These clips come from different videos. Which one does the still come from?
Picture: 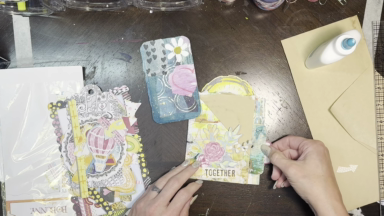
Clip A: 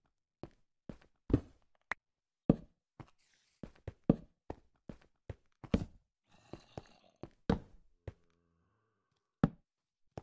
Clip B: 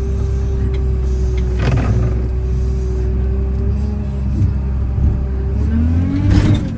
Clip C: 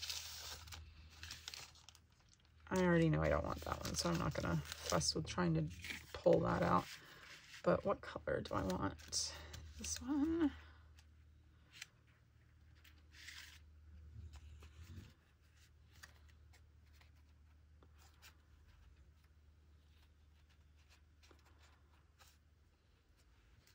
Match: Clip C